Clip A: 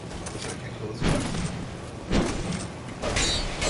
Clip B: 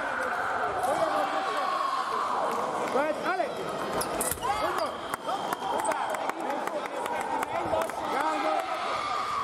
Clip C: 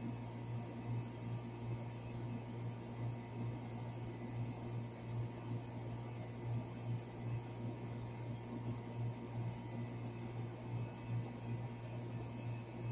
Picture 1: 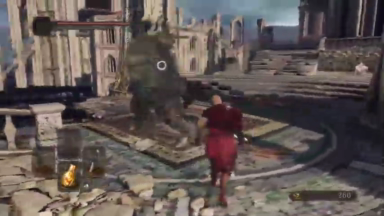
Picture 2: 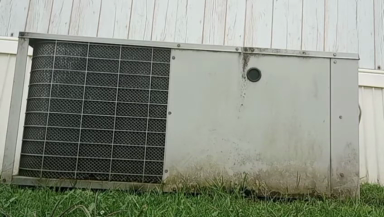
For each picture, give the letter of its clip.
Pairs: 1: A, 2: C